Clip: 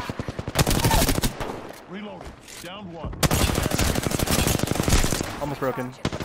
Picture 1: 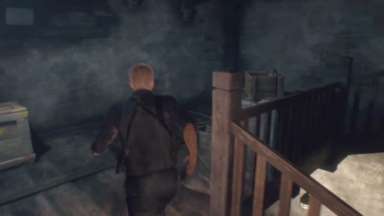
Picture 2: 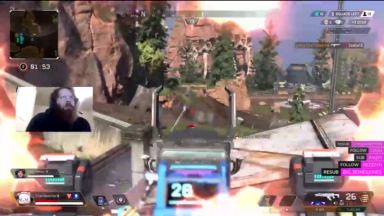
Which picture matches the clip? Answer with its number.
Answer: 2